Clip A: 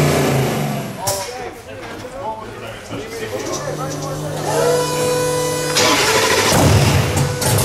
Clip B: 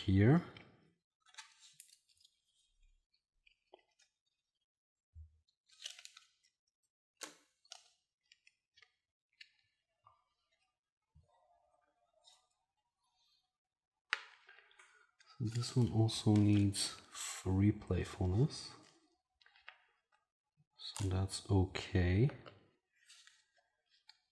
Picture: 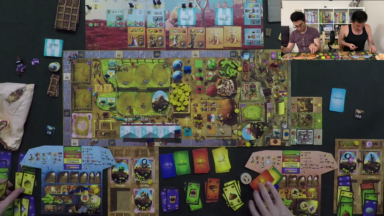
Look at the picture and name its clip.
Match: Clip B